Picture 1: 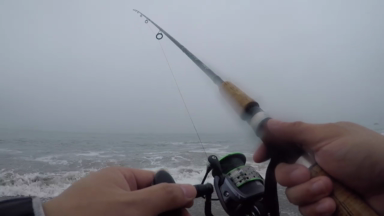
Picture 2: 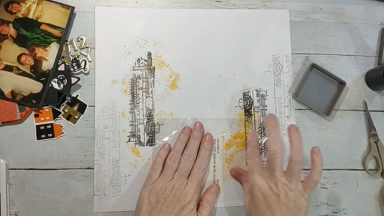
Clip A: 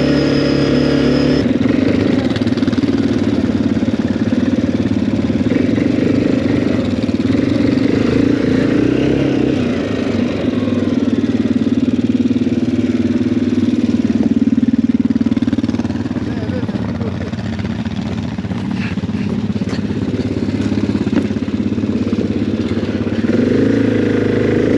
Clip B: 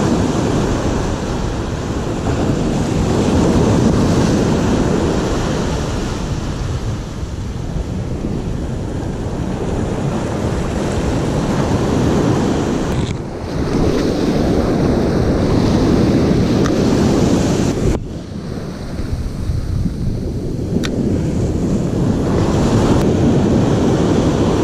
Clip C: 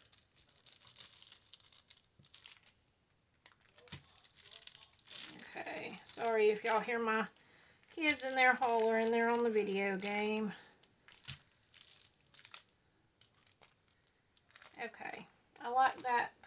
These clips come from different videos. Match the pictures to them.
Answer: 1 B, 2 C